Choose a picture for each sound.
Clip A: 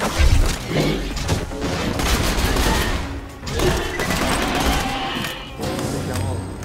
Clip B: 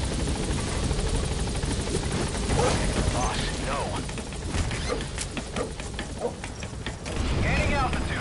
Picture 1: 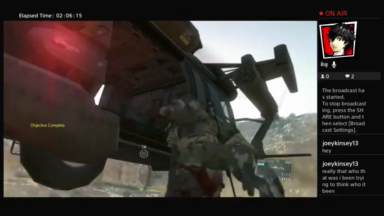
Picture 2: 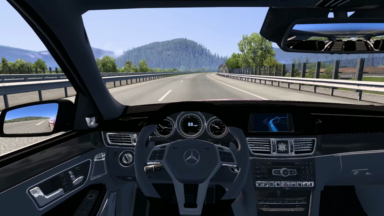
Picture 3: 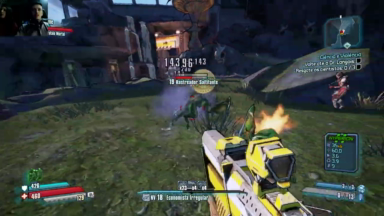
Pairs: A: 3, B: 1